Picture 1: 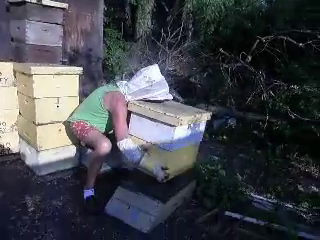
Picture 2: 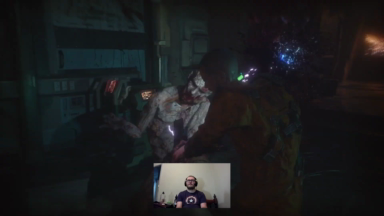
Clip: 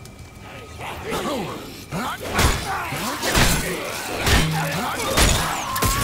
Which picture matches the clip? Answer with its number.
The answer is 2